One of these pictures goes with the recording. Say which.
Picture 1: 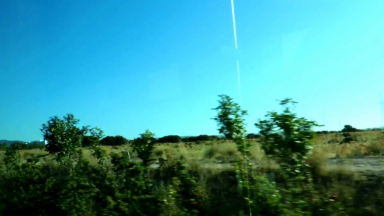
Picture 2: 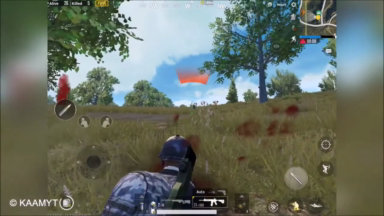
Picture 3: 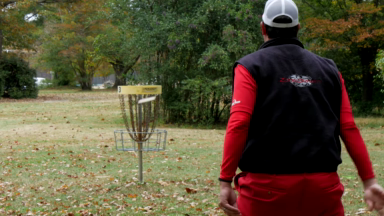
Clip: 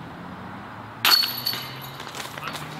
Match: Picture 3